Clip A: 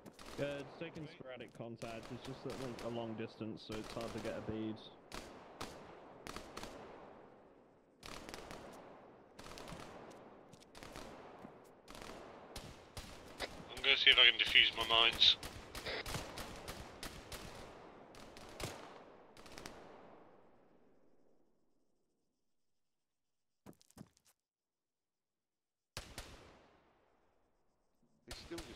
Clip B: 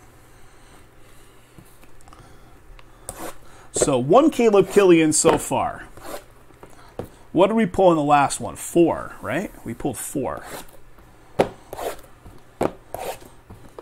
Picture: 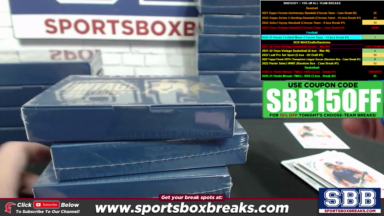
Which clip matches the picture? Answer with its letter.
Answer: B